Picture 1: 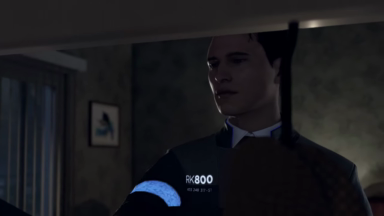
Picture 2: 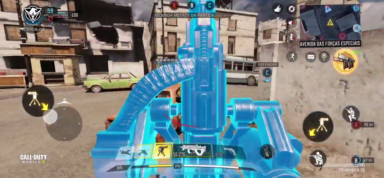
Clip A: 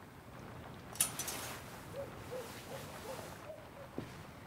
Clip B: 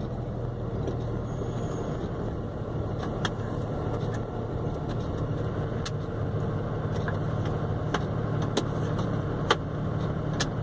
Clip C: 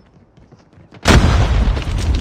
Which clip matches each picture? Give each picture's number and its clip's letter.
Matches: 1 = A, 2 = C